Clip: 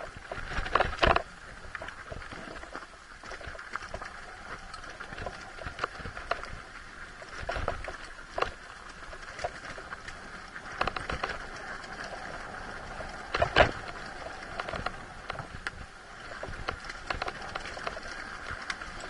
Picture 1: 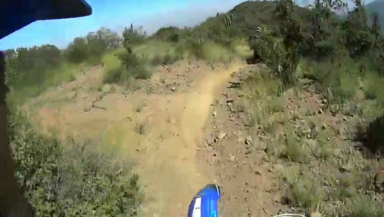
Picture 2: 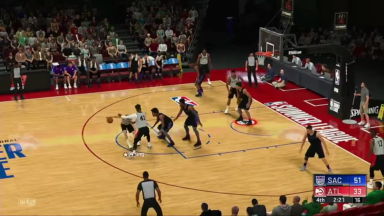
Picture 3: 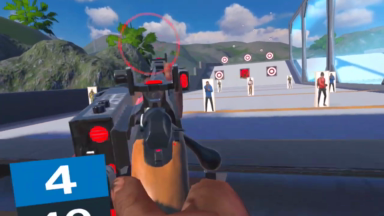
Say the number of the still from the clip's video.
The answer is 1